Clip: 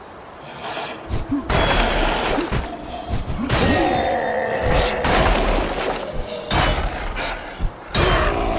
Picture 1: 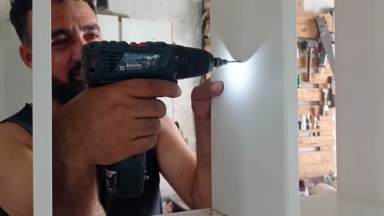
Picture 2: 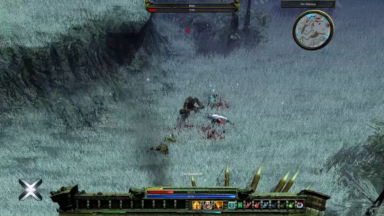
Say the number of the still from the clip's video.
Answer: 2